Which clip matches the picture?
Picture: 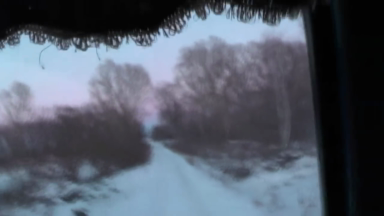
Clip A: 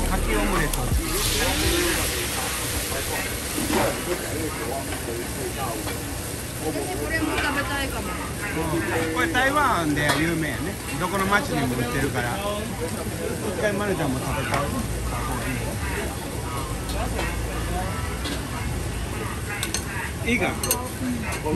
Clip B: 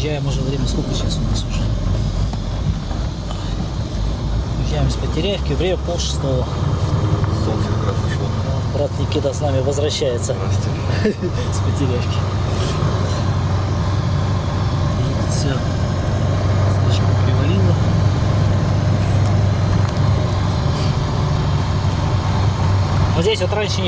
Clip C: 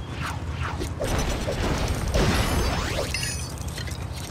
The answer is B